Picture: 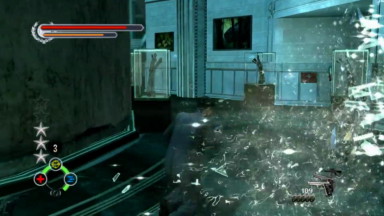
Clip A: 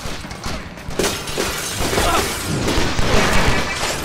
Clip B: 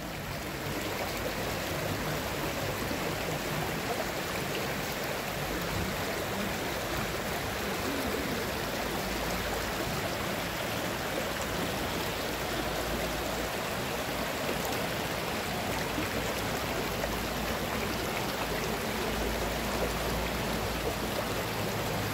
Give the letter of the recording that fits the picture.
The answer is A